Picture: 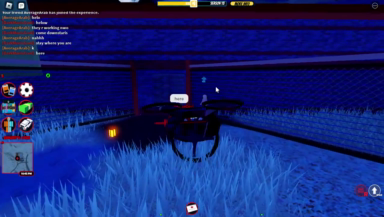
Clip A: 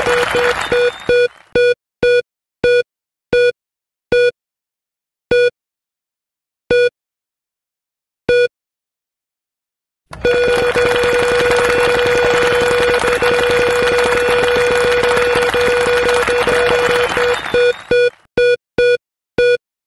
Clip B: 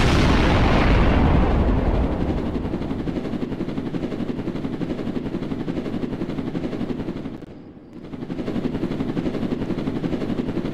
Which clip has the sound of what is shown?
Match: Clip B